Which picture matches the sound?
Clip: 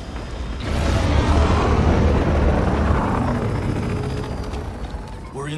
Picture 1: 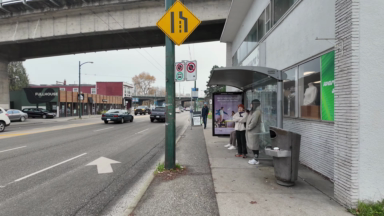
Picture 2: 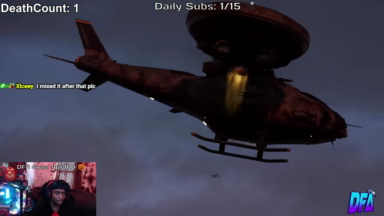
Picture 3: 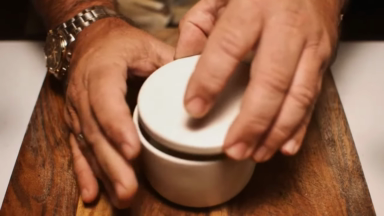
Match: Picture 2